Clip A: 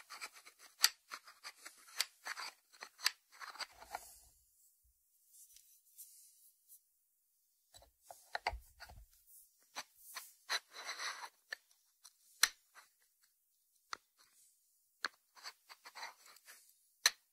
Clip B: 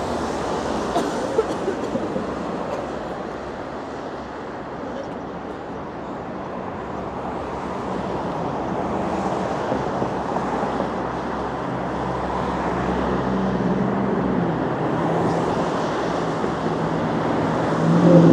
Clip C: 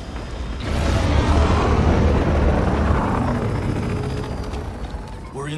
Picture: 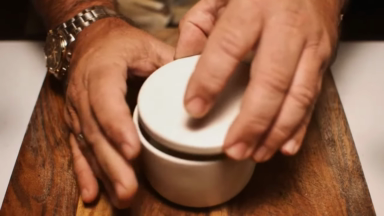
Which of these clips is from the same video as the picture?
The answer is A